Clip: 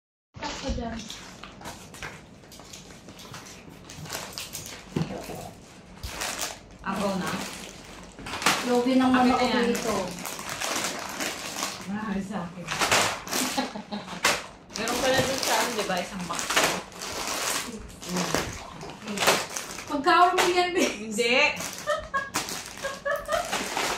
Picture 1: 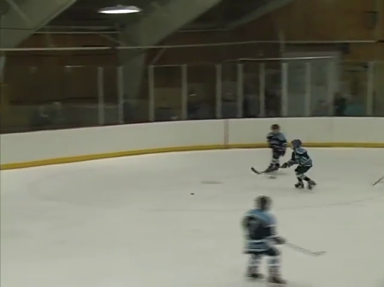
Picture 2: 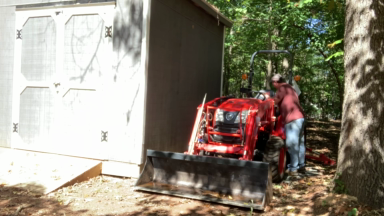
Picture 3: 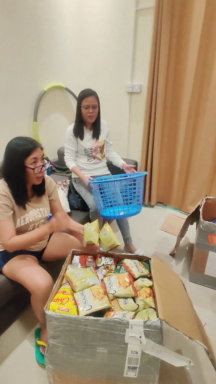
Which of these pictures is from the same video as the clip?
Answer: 3